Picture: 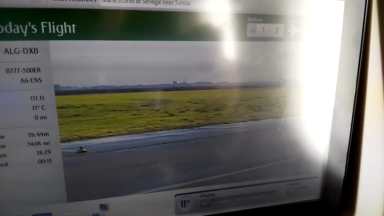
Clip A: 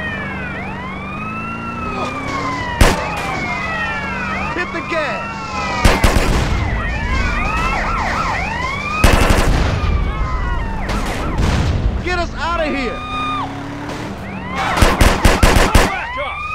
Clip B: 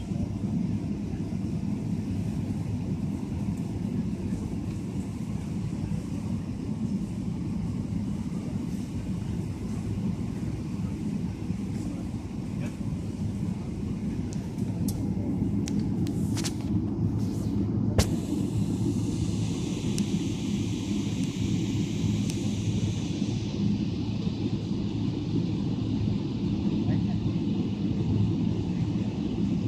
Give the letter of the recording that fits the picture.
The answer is B